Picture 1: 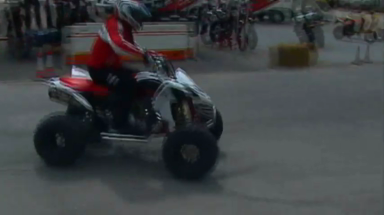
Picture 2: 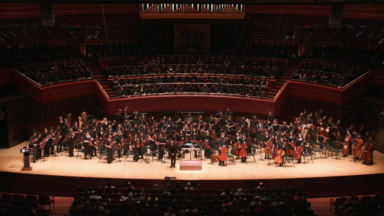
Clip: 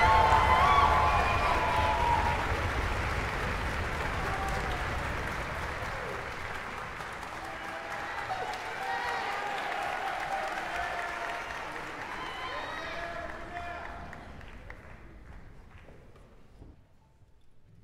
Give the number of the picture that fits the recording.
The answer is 2